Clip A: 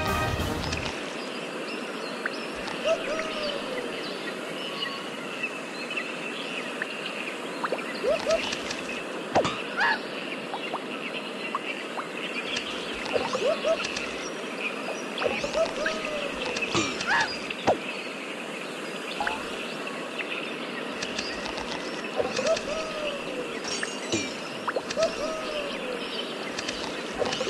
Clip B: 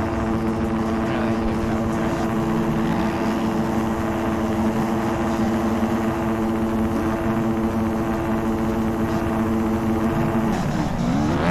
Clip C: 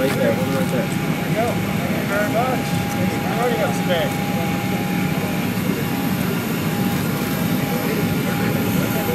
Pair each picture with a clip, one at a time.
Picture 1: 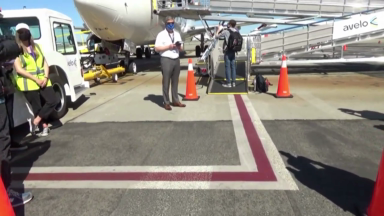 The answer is C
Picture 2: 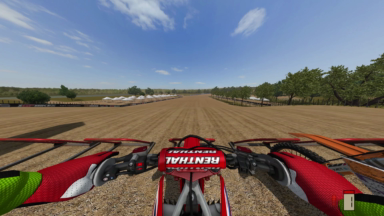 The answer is B